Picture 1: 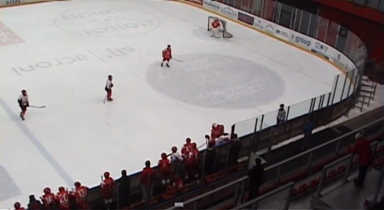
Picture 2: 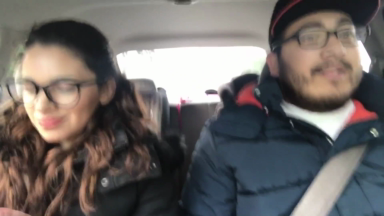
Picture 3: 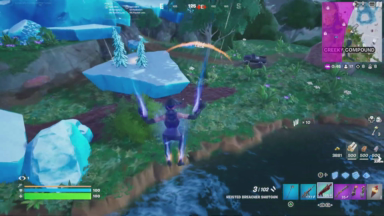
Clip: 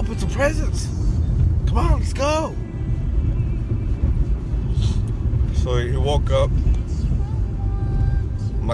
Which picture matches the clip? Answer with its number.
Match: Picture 2